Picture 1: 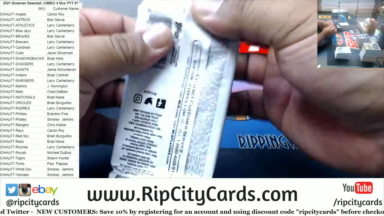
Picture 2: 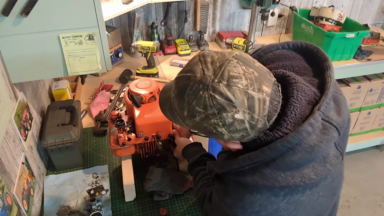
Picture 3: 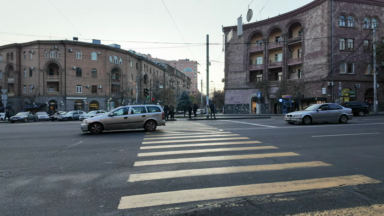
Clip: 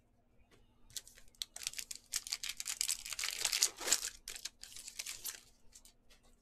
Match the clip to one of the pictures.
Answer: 1